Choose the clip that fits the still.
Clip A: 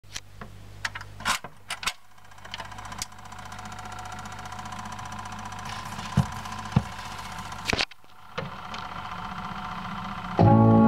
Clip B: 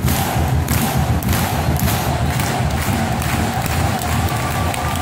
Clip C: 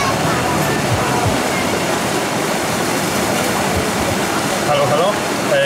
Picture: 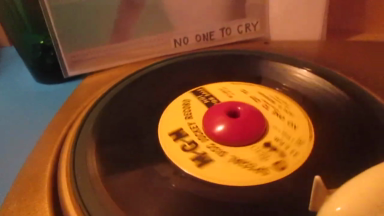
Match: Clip A